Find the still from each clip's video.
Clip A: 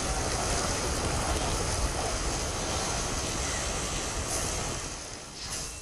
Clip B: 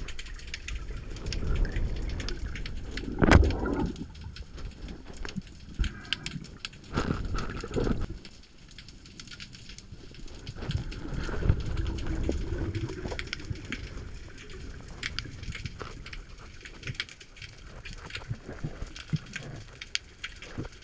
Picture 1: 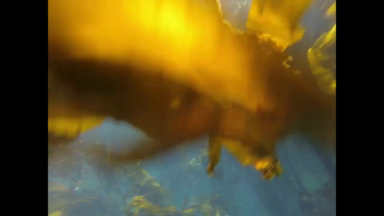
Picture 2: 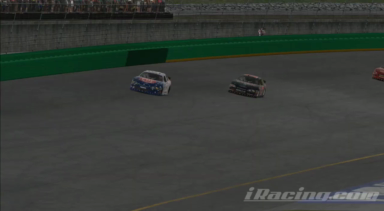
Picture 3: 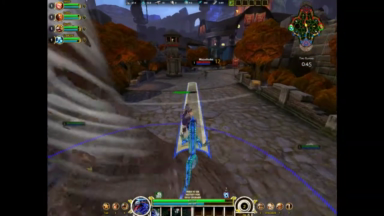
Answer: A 3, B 1